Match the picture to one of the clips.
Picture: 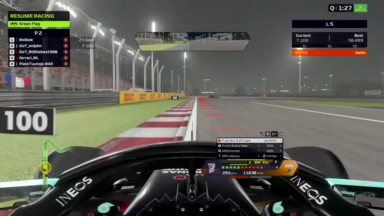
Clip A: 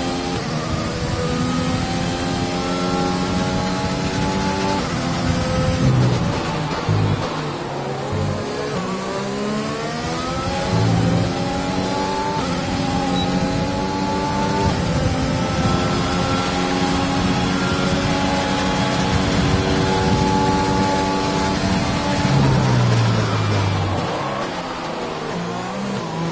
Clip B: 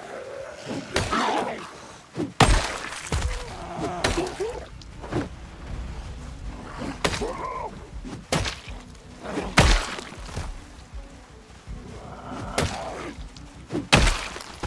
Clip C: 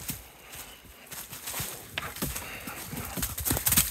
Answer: A